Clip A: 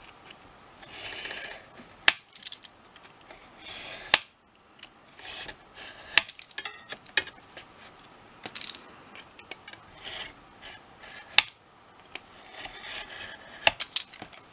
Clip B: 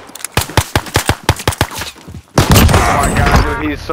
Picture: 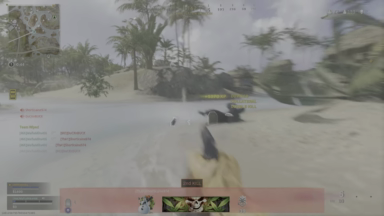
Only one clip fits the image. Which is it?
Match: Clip B